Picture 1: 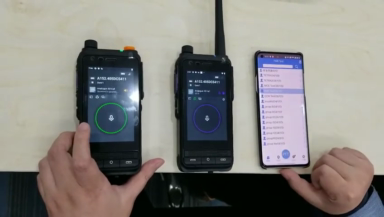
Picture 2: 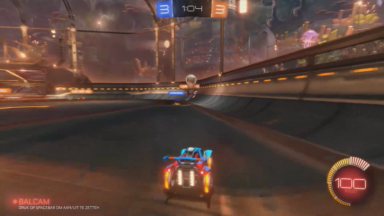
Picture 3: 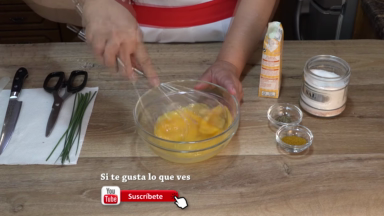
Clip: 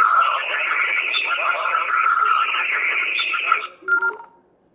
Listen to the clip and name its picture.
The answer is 1